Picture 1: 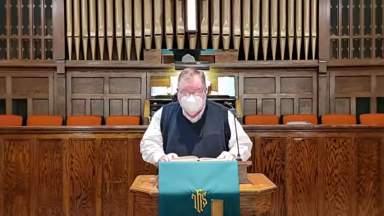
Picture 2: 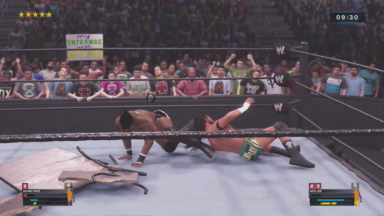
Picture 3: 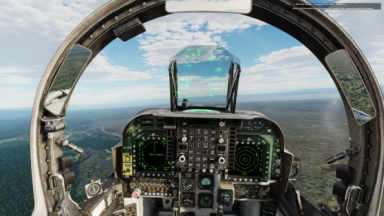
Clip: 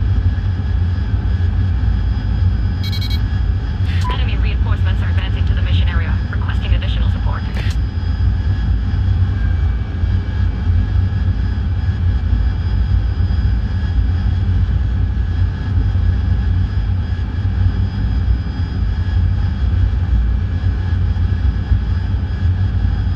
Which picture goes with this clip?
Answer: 3